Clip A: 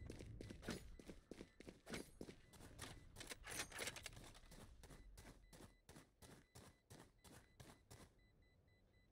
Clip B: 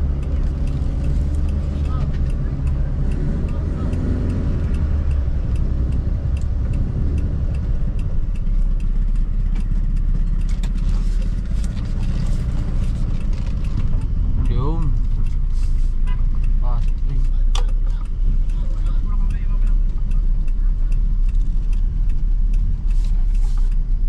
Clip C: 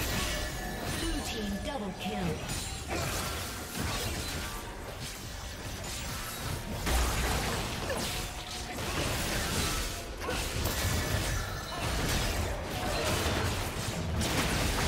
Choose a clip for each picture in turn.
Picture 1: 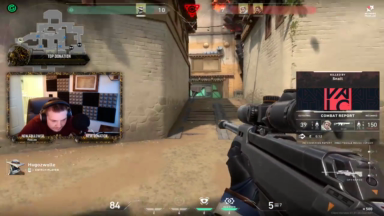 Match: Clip A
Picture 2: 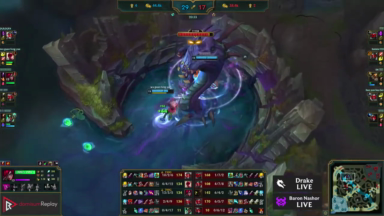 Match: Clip C